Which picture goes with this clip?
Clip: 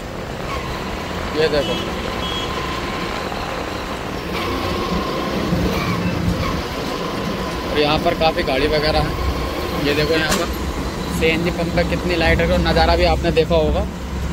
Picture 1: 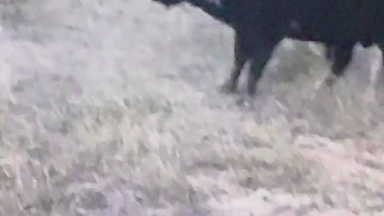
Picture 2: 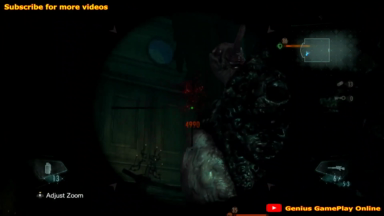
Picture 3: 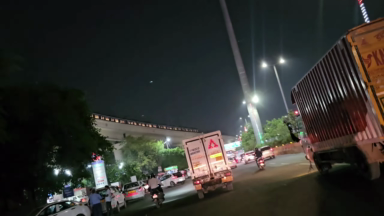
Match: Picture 3